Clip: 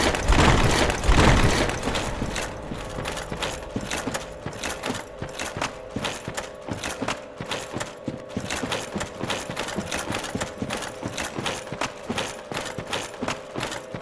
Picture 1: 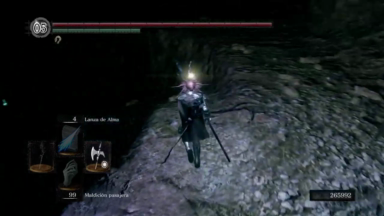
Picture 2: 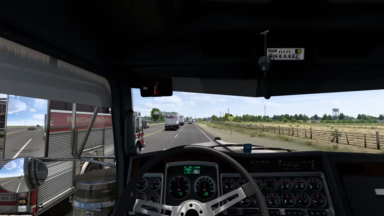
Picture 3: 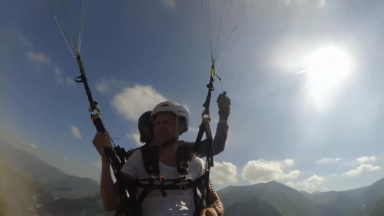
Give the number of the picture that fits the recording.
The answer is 1